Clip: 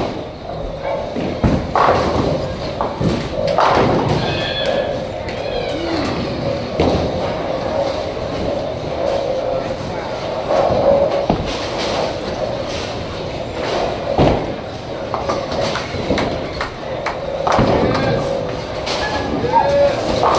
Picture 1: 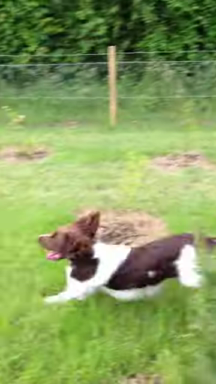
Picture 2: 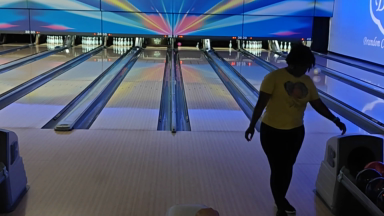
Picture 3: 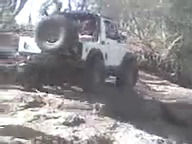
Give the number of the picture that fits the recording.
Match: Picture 2